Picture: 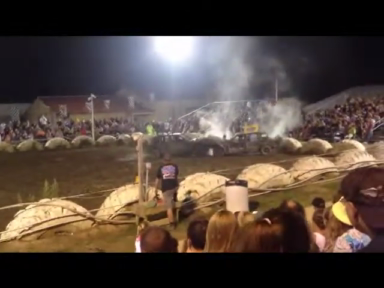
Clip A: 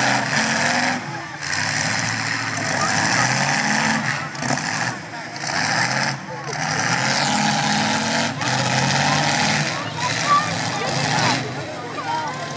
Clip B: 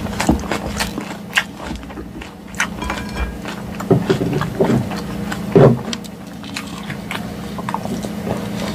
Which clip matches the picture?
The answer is A